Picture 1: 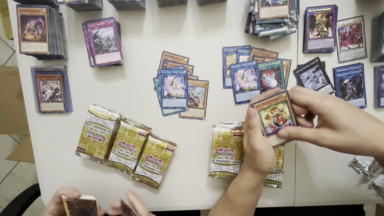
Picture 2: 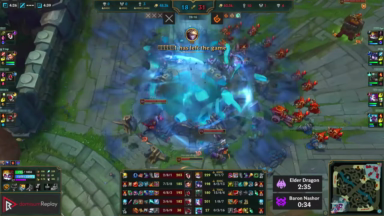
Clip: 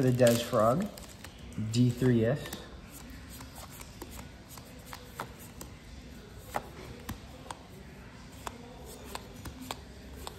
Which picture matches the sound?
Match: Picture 1